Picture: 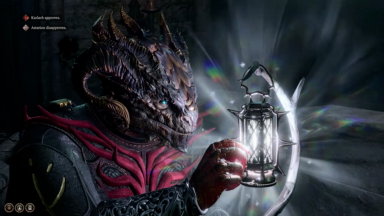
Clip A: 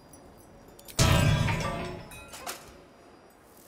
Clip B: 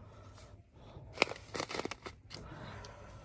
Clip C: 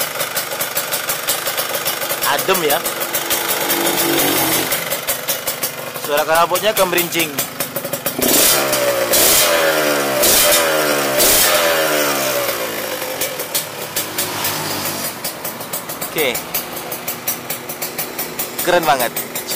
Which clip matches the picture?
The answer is A